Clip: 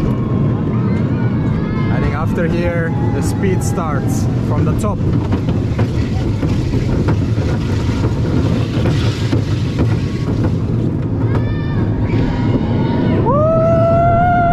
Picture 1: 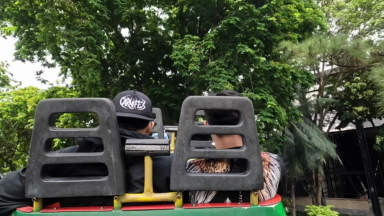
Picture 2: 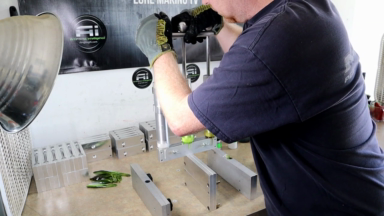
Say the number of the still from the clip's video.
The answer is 1